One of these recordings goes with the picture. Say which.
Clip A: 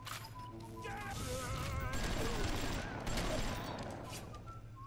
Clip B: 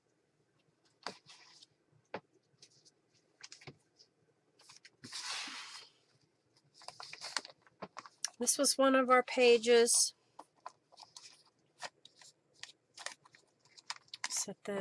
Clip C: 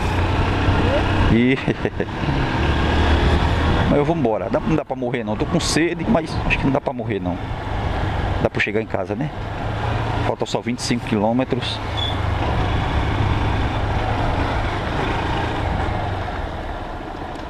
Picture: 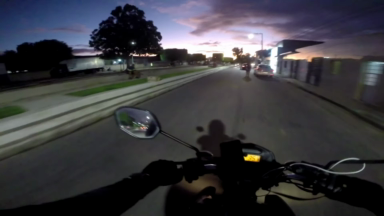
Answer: C